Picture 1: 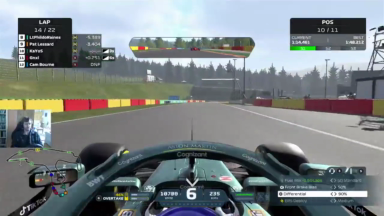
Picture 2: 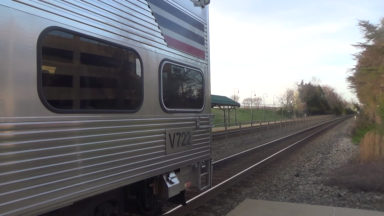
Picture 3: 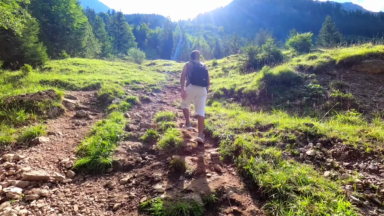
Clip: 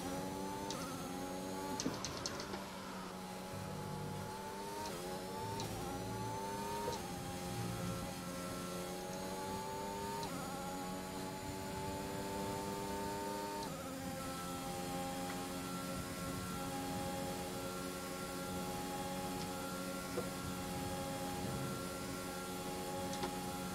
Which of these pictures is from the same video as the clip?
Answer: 1